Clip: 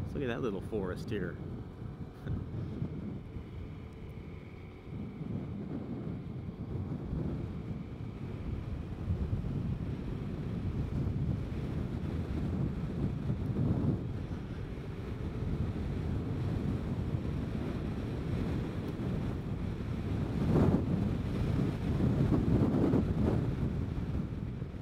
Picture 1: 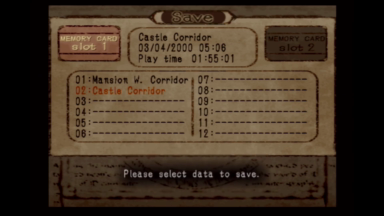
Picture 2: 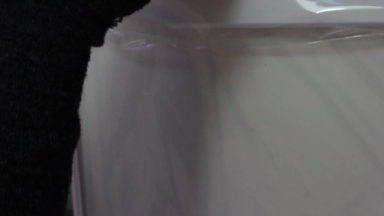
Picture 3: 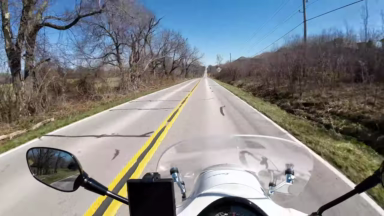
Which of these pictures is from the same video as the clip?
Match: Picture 3